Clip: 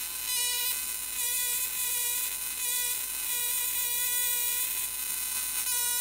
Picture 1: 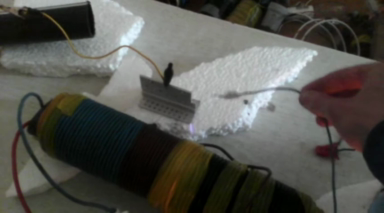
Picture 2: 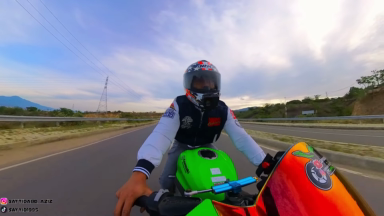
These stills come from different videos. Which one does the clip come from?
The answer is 1